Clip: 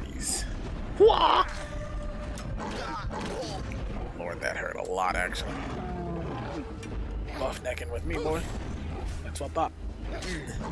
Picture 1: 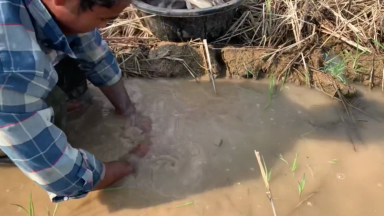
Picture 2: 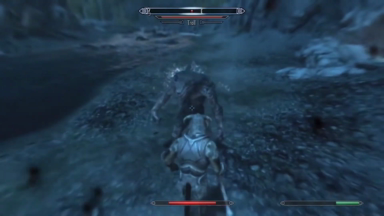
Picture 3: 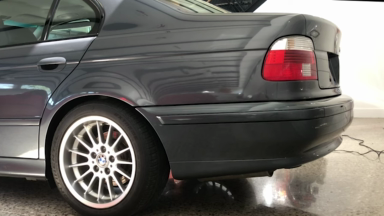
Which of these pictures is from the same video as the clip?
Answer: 2